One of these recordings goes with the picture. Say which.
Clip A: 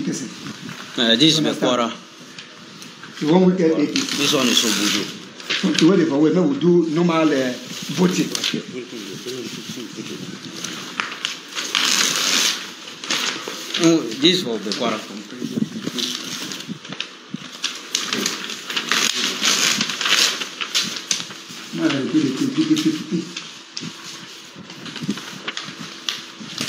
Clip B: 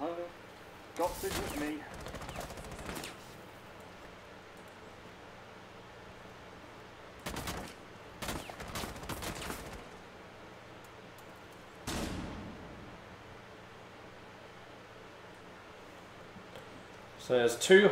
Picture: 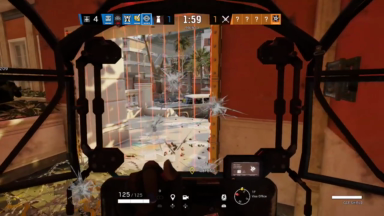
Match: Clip B